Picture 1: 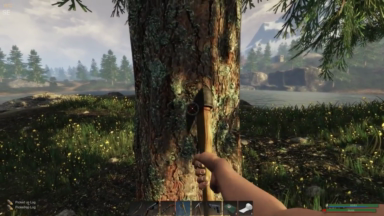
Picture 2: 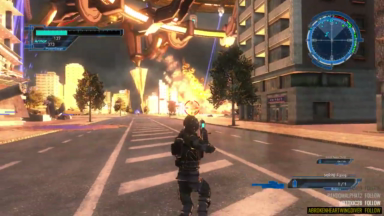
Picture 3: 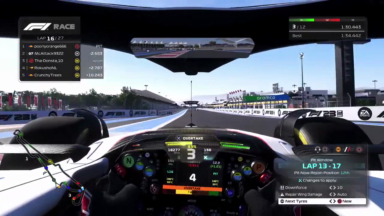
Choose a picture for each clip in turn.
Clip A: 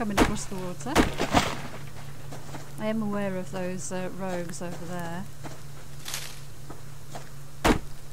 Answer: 1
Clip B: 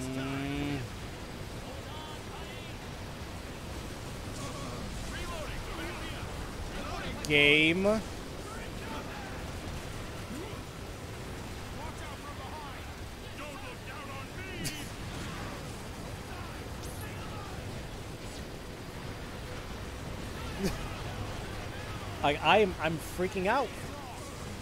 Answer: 2